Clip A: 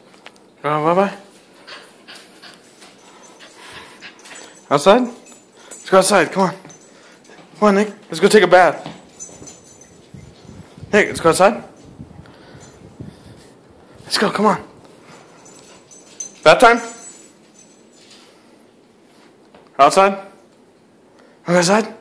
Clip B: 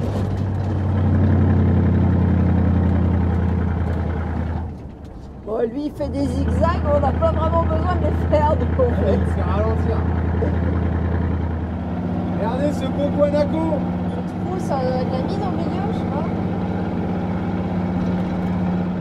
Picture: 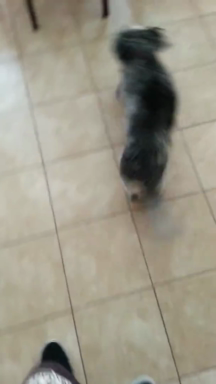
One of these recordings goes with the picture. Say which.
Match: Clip A